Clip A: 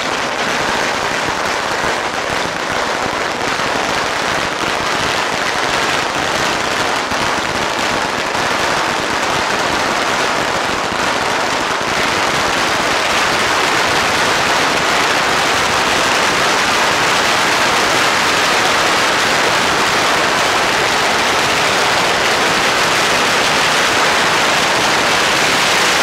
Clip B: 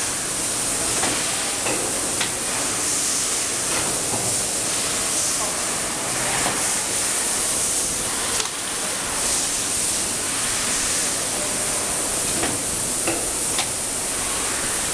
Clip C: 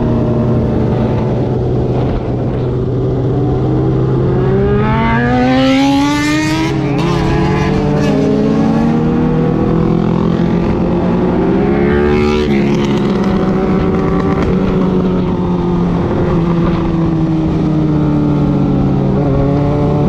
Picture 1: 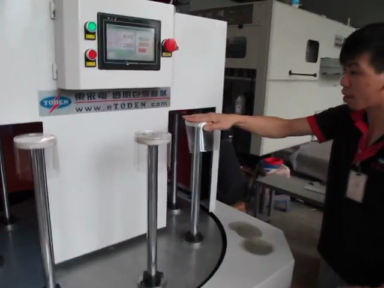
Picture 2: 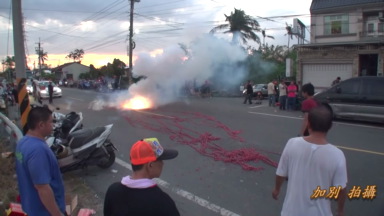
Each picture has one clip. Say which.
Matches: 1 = B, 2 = A